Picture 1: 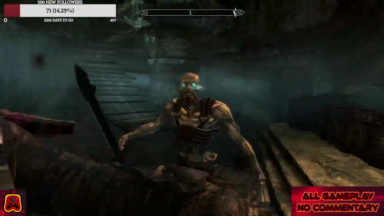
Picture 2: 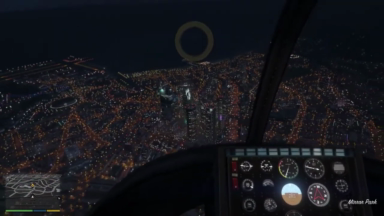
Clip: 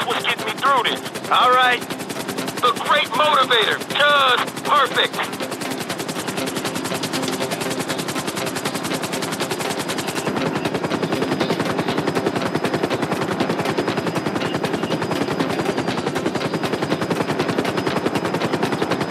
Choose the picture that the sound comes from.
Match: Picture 2